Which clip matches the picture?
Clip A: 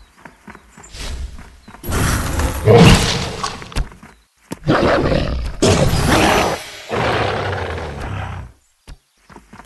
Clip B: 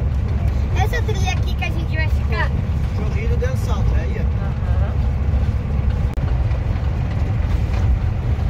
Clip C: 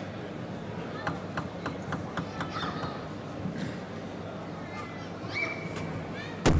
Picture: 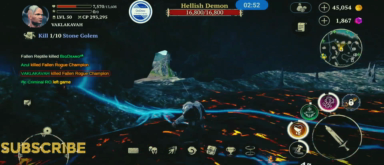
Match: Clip A